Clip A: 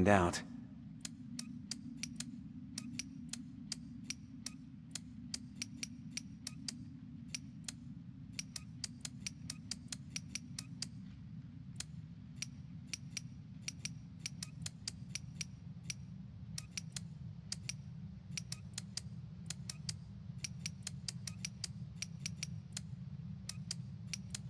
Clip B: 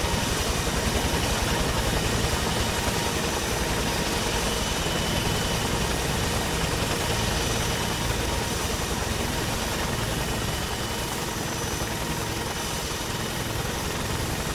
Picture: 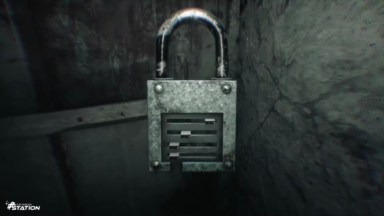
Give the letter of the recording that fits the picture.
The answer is A